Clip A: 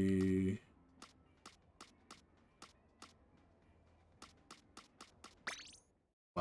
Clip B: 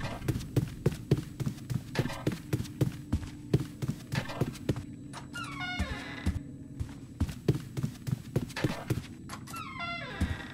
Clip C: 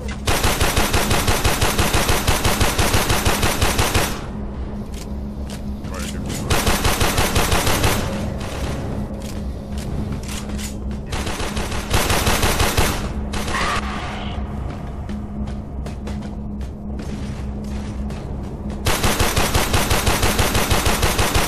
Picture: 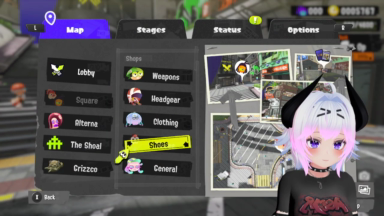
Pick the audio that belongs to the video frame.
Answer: A